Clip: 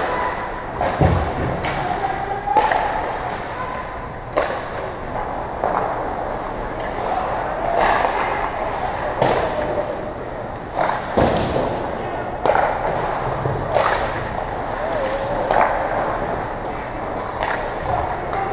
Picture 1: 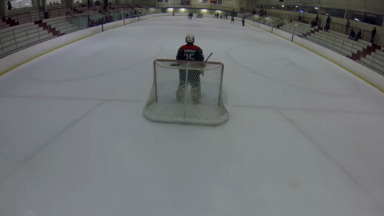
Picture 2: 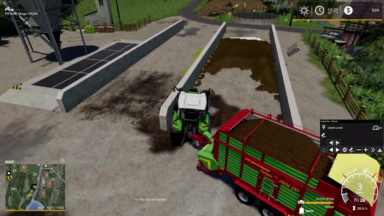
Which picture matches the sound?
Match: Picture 1